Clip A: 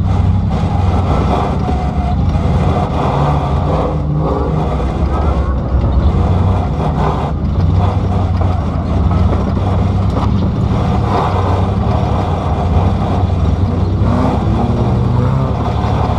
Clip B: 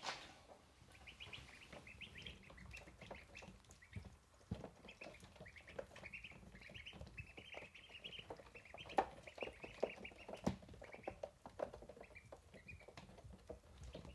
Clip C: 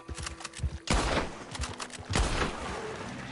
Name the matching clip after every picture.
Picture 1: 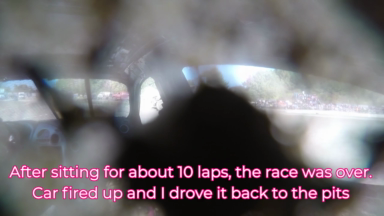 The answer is A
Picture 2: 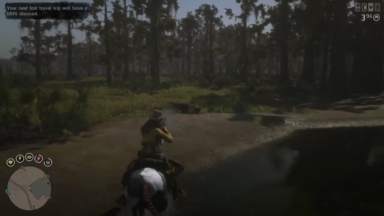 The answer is C